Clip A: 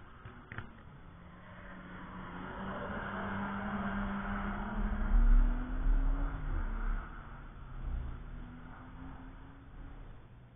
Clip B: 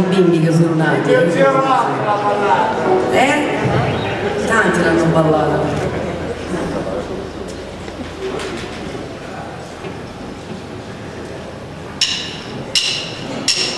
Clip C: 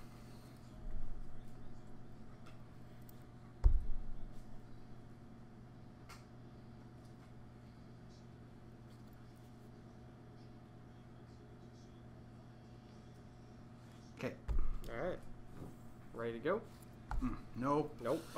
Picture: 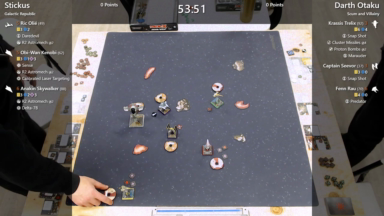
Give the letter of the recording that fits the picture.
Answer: C